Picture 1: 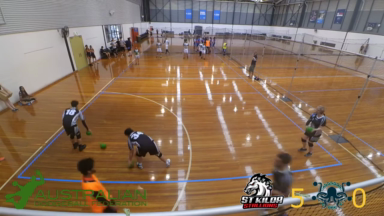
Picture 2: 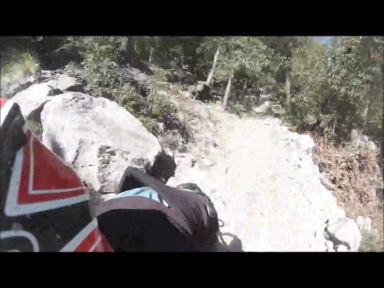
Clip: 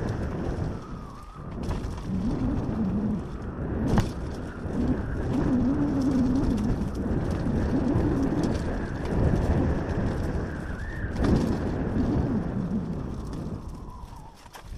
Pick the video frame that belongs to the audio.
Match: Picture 2